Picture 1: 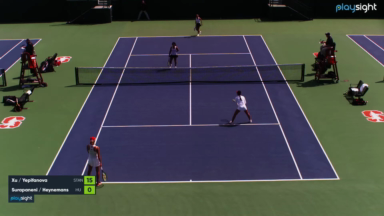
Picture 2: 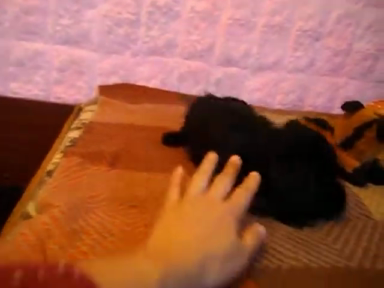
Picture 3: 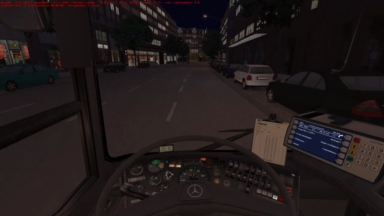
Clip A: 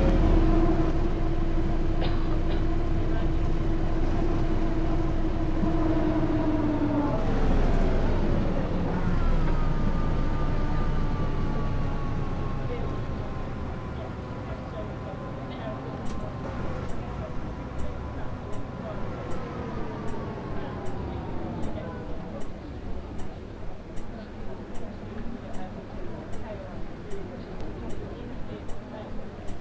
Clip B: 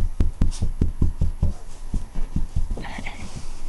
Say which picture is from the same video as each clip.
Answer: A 3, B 2